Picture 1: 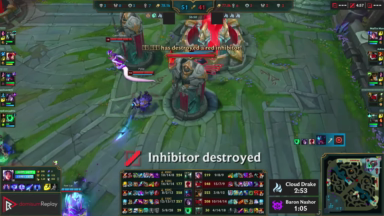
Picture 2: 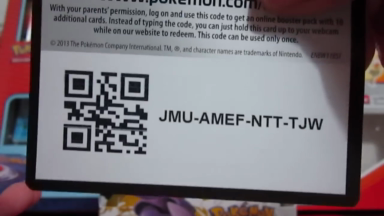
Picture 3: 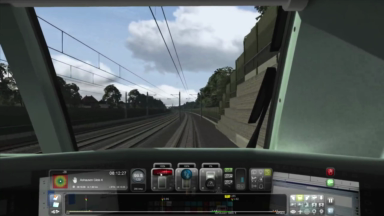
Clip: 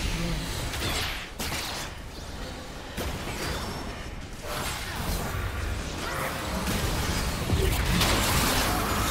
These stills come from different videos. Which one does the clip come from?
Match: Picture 1